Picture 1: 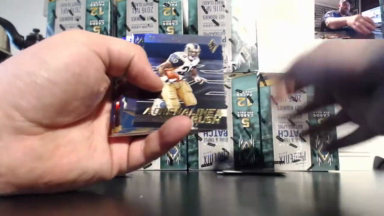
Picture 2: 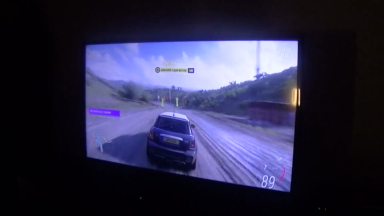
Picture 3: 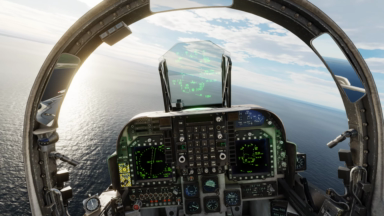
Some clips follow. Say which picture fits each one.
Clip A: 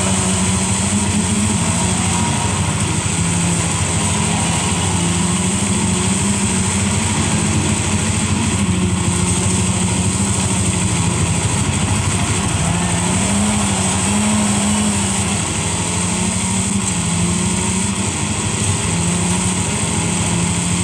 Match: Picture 2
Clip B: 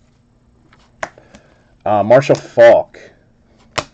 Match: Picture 1